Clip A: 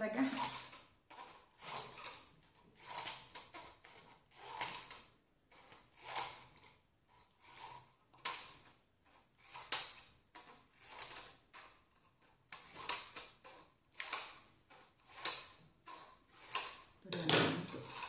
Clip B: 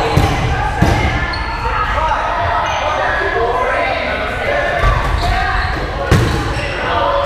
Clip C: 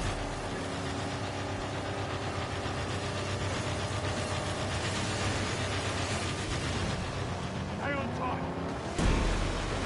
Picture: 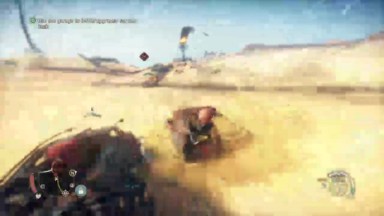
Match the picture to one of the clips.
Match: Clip C